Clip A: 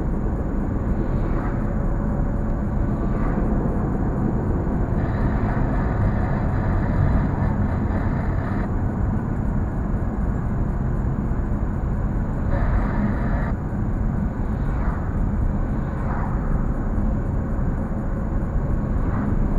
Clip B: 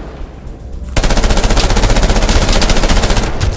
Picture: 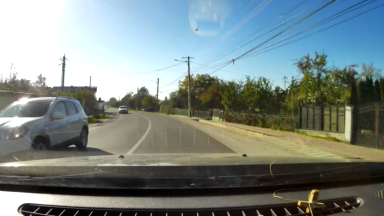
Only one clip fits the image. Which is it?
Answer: A